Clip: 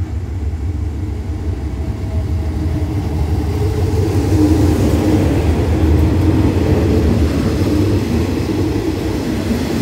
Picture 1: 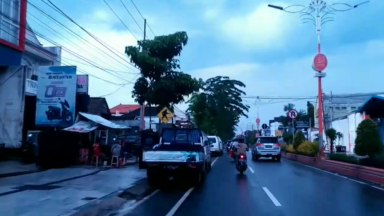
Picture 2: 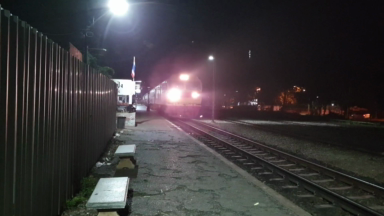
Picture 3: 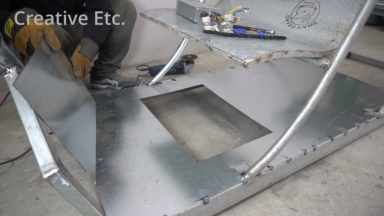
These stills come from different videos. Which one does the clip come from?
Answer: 2